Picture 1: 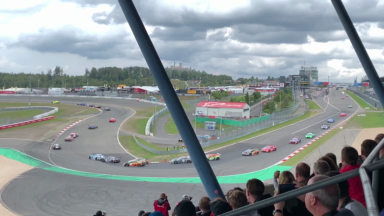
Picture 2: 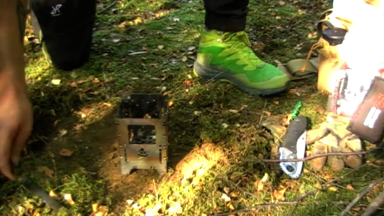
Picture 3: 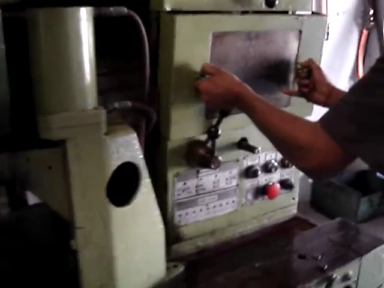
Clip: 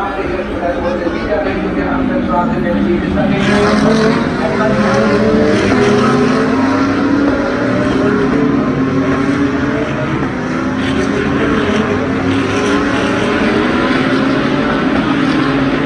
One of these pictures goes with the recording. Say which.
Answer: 1